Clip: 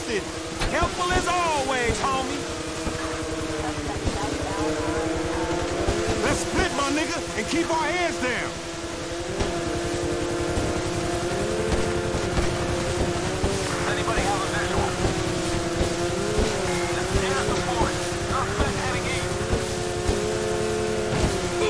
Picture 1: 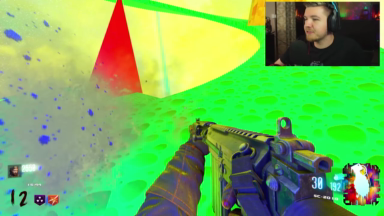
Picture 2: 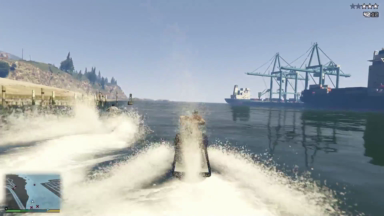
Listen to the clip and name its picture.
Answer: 2